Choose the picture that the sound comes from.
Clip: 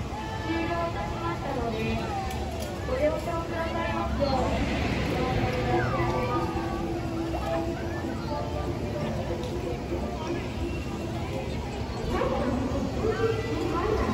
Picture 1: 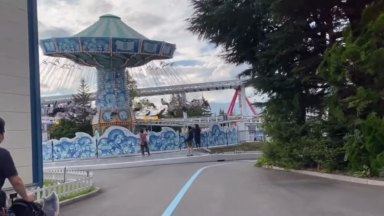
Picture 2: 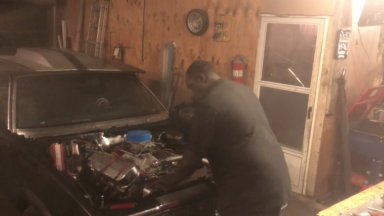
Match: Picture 1